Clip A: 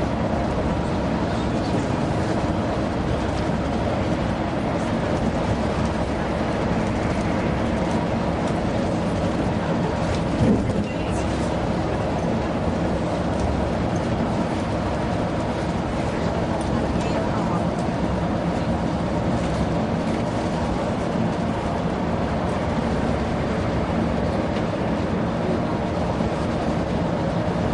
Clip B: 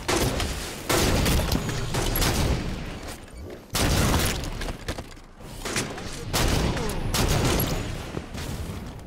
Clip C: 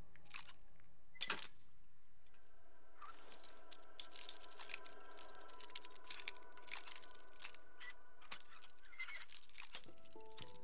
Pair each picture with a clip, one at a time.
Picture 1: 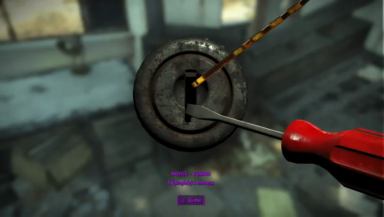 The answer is C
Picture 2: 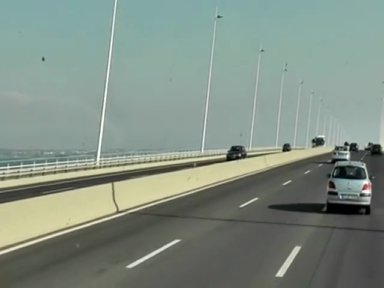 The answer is A